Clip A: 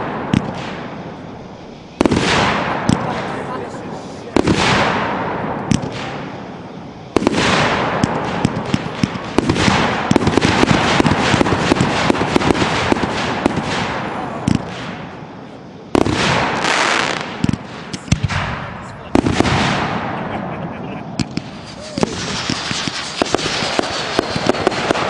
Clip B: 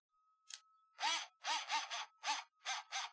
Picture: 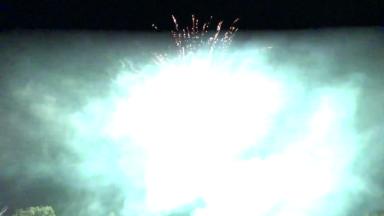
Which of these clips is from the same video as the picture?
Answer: A